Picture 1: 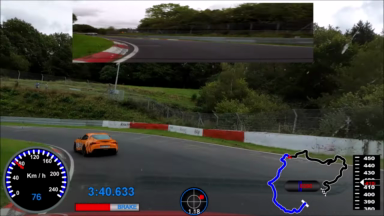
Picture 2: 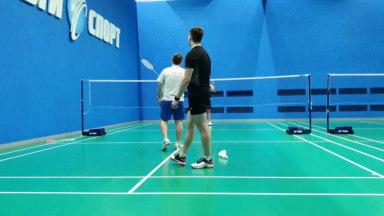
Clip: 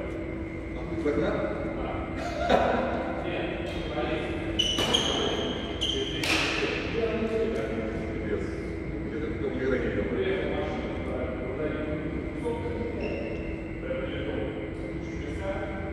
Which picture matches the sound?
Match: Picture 2